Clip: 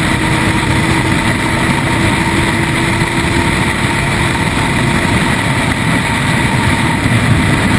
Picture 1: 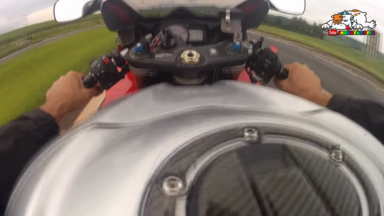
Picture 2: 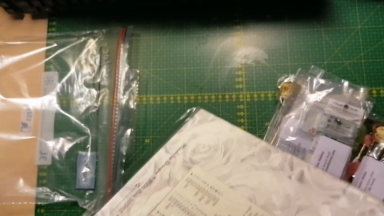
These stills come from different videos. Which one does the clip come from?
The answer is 1